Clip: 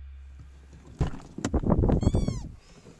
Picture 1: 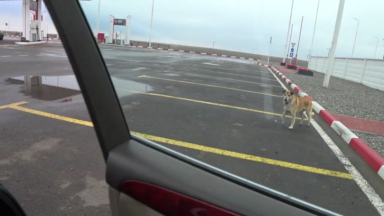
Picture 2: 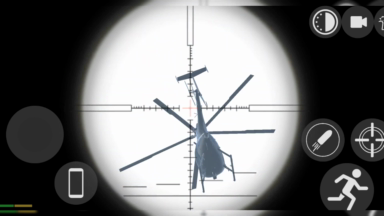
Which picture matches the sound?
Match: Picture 1